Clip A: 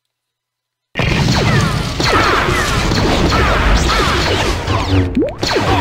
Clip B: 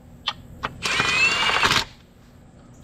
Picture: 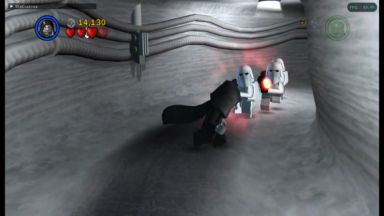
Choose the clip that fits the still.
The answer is A